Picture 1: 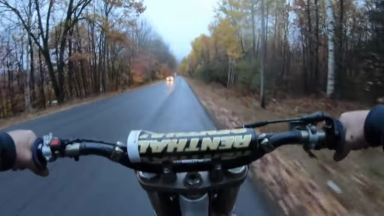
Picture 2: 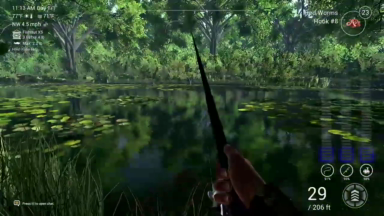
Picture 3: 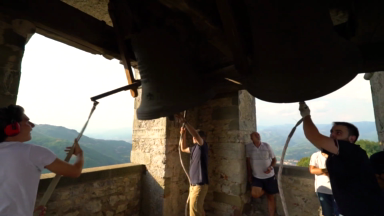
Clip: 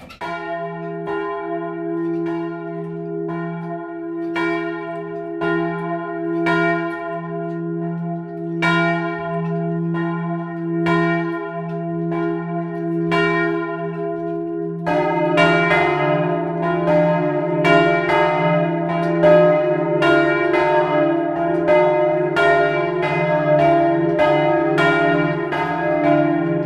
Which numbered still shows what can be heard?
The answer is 3